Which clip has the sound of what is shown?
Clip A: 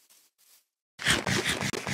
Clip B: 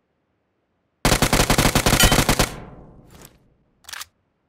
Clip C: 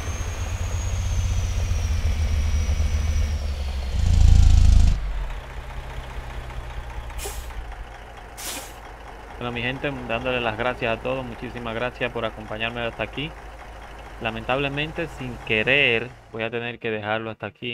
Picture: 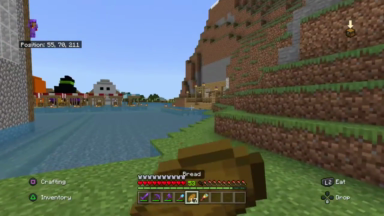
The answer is A